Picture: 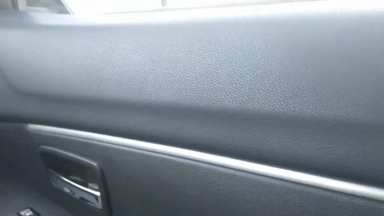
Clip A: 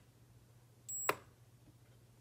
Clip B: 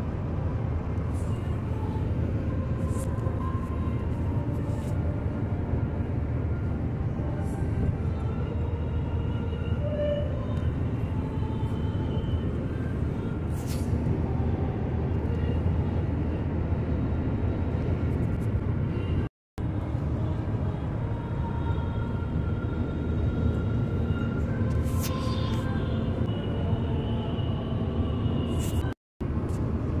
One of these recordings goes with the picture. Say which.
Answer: B